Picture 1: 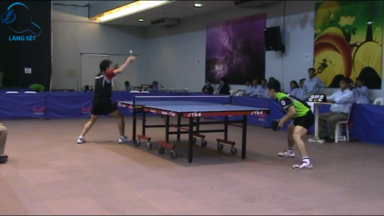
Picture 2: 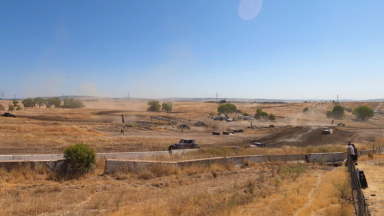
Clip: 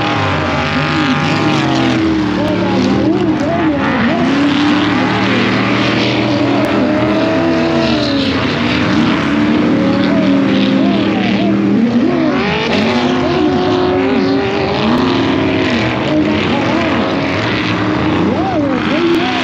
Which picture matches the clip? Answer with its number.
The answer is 2